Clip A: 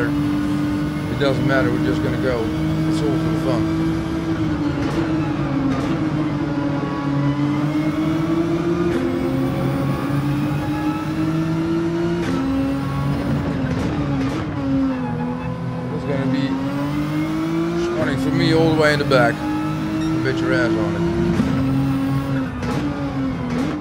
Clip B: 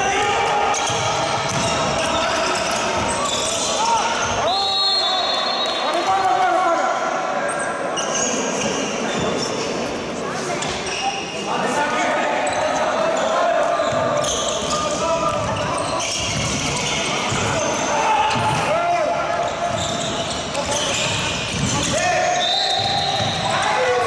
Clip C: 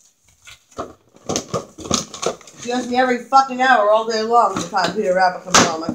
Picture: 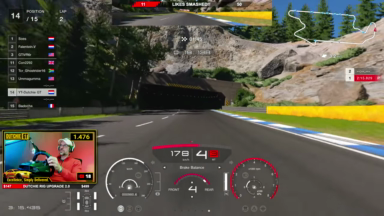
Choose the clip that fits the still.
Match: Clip A